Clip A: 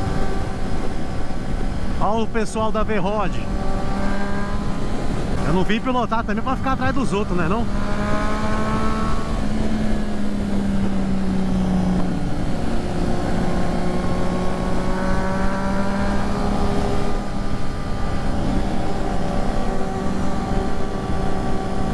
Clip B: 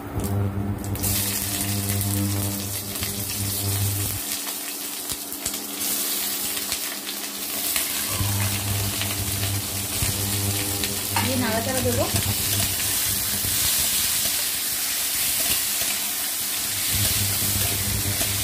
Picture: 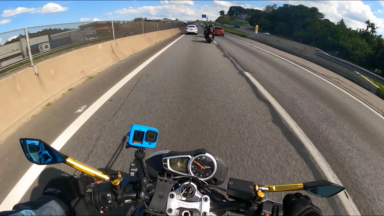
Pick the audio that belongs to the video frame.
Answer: A